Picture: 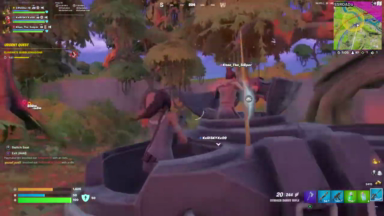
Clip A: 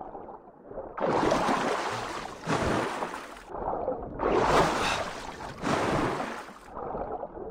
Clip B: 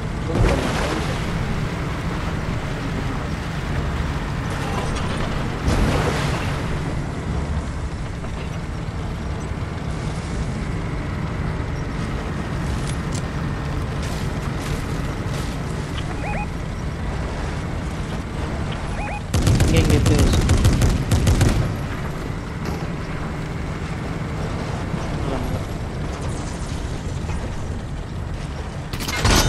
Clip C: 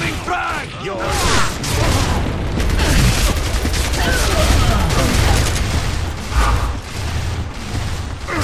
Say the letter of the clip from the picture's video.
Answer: B